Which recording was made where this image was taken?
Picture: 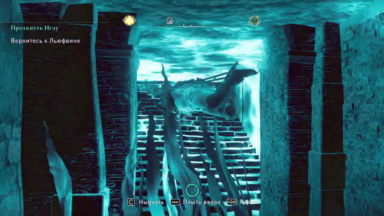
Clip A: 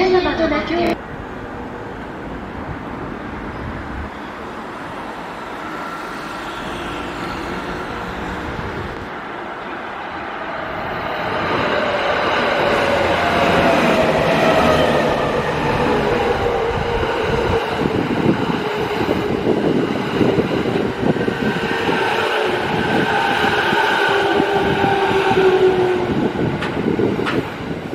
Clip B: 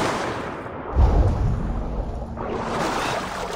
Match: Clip B